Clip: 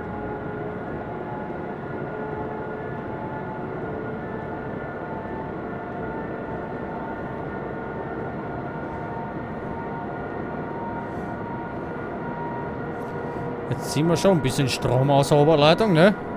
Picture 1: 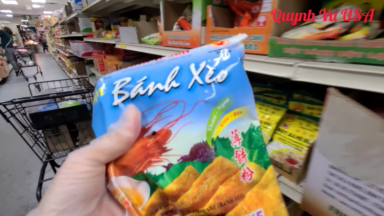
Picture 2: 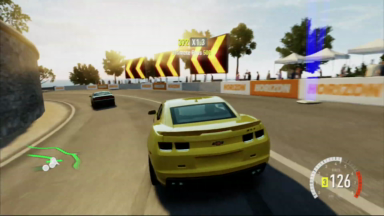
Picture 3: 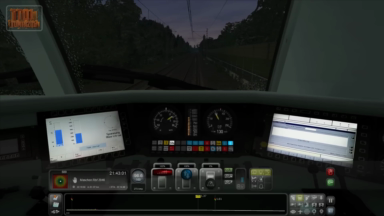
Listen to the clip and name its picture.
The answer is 3